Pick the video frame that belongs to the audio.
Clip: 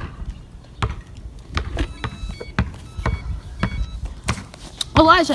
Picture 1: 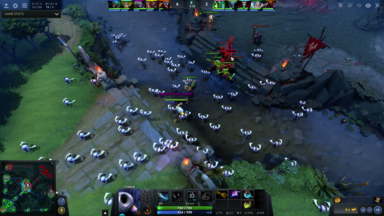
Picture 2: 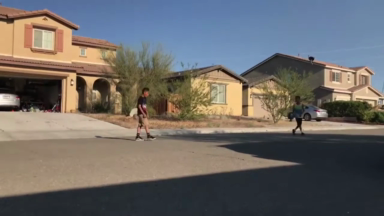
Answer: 2